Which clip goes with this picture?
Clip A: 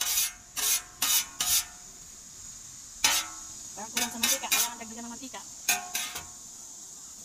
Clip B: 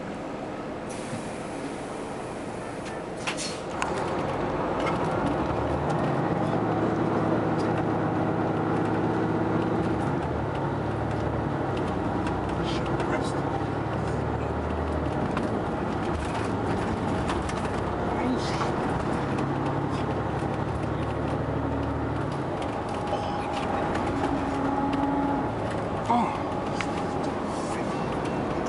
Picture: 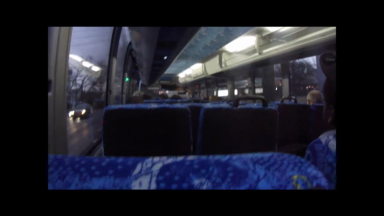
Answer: B